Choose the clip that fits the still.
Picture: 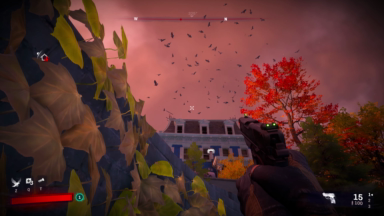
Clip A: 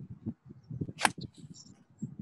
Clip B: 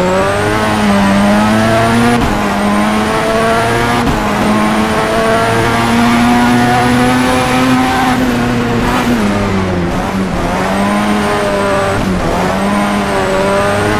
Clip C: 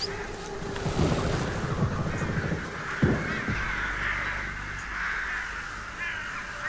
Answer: C